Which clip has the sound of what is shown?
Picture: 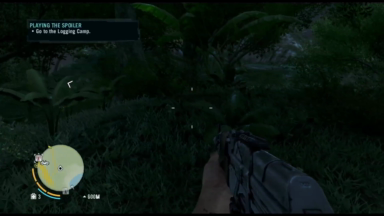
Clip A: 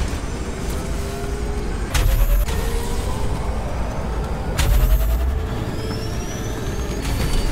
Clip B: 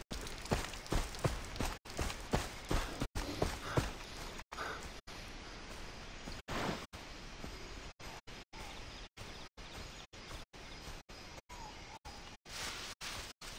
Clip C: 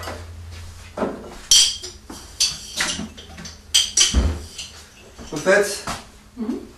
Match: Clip B